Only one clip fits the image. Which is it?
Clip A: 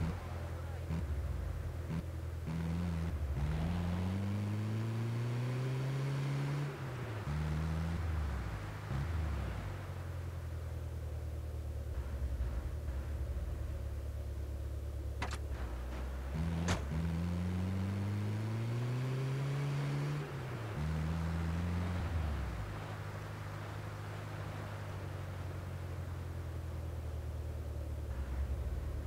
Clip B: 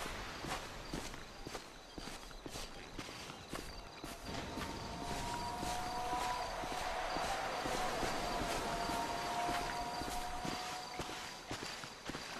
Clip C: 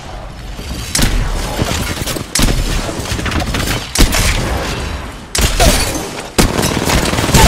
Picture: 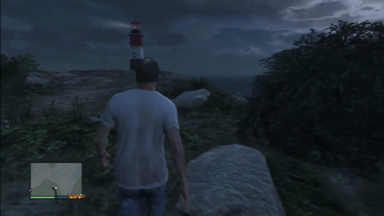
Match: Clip B